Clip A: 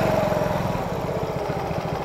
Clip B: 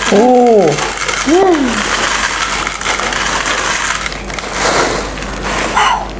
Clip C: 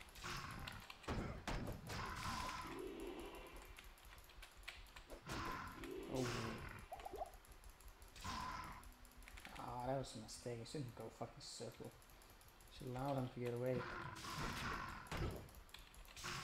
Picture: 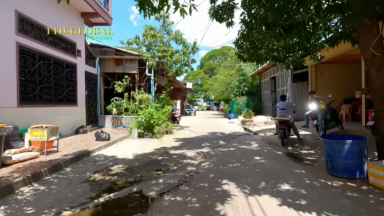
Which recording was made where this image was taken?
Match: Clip A